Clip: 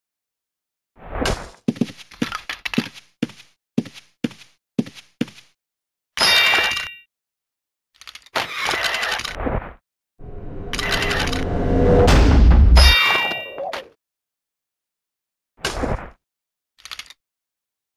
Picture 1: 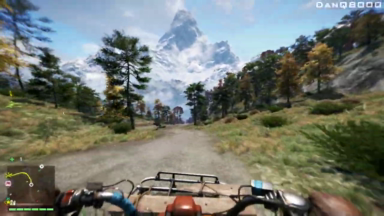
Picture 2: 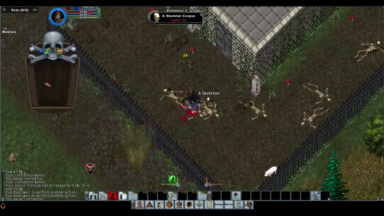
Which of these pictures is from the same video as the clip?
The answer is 2